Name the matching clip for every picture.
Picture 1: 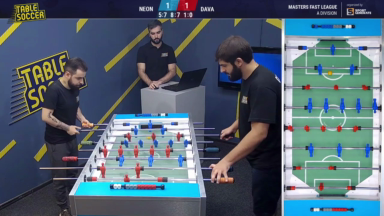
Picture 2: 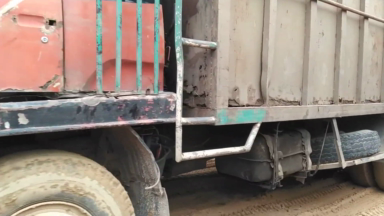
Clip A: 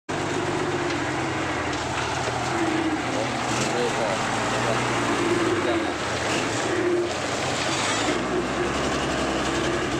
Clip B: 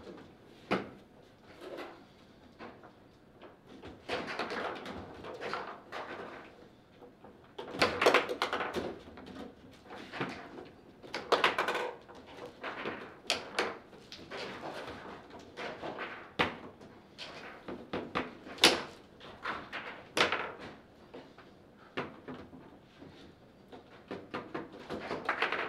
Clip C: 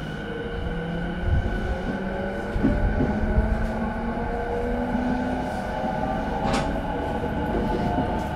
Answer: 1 B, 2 A